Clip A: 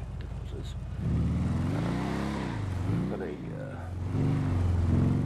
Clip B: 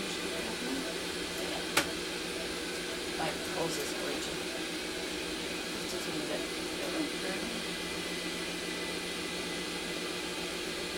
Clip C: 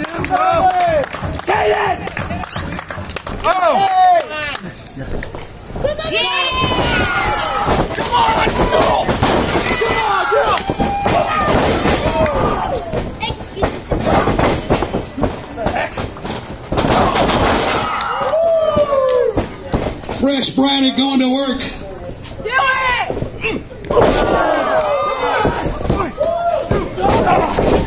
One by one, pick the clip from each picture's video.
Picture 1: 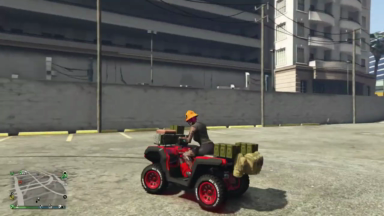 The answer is A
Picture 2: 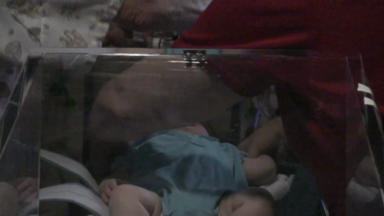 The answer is B